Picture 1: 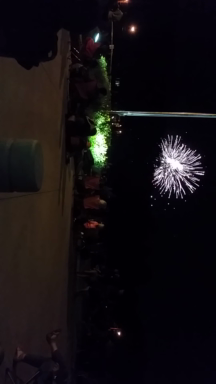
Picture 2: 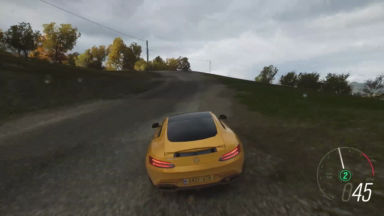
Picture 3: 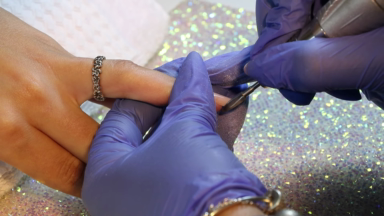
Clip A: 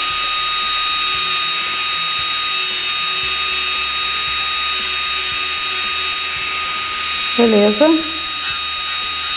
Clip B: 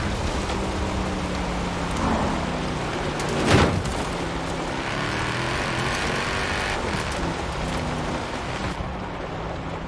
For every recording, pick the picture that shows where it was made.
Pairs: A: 3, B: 2